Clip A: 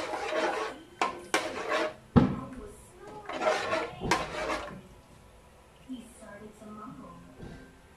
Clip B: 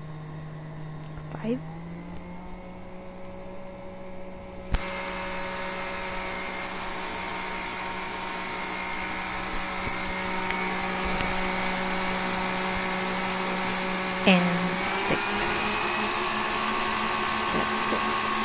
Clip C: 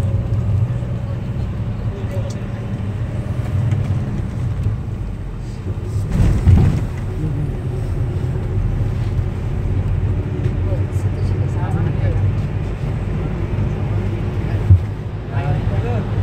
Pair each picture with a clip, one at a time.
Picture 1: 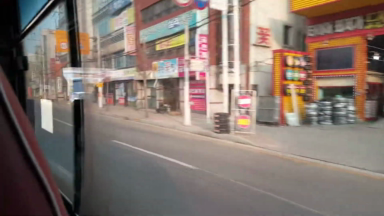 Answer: C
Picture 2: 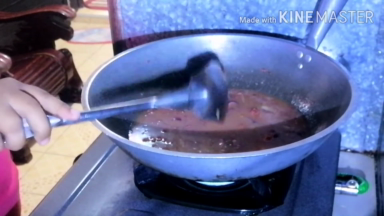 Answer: A